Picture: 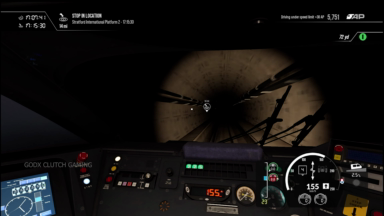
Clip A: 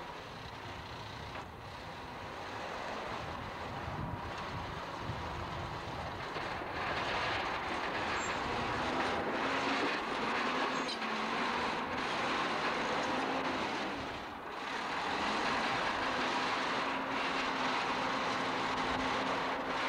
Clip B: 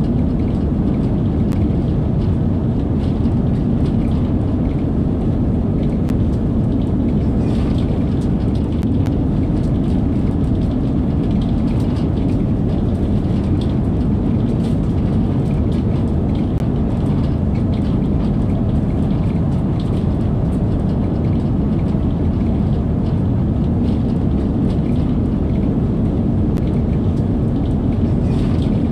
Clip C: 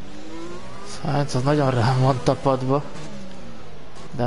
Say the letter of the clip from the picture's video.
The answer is B